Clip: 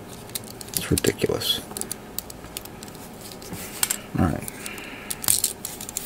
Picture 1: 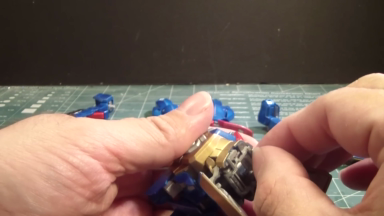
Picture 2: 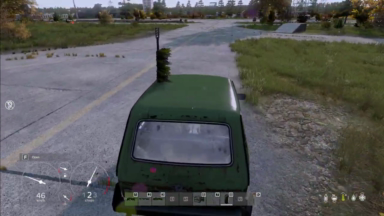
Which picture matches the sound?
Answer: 1